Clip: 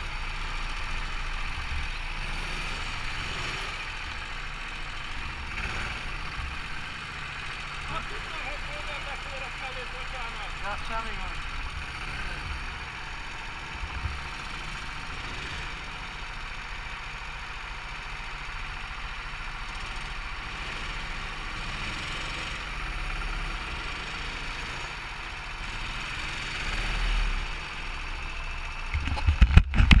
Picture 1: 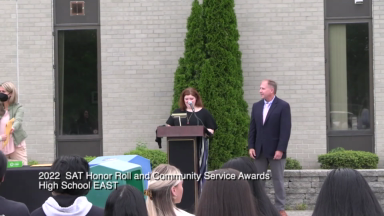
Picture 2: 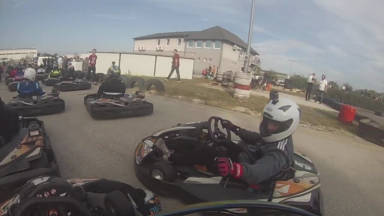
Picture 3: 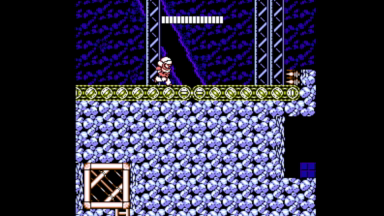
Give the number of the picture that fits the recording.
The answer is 2